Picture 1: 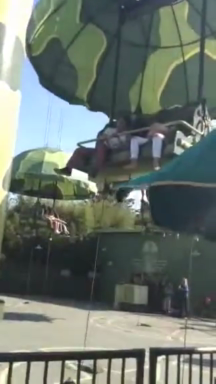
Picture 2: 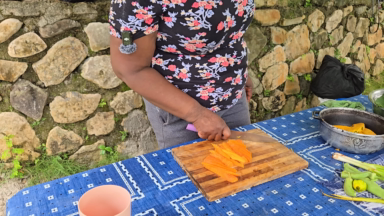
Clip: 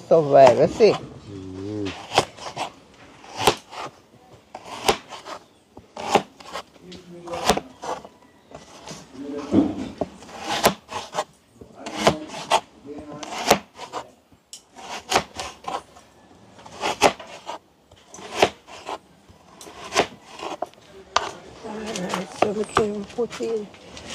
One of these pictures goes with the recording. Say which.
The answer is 2